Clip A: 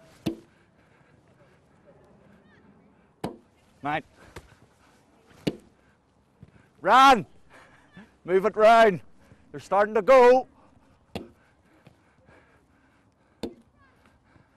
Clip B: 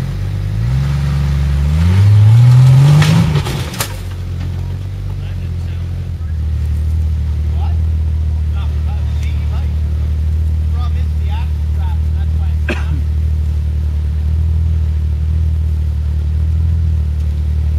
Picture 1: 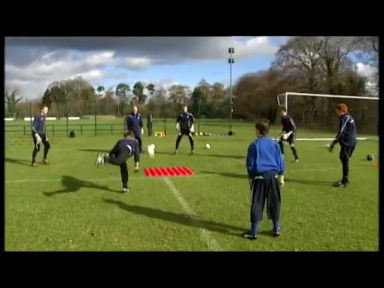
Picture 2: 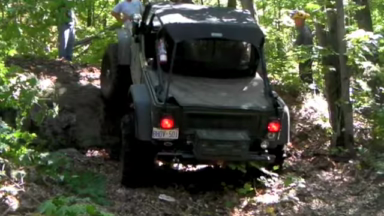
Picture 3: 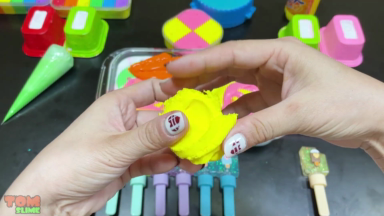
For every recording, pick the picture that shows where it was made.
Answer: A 1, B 2